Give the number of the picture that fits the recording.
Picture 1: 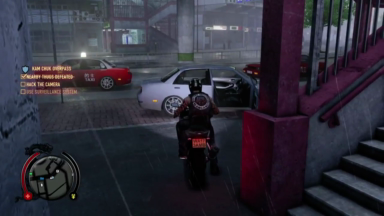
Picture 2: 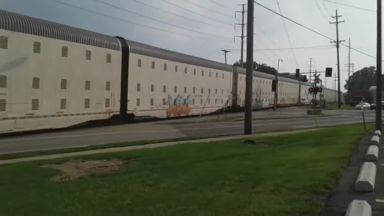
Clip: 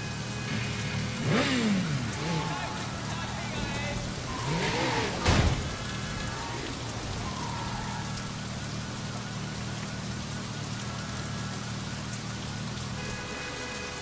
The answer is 1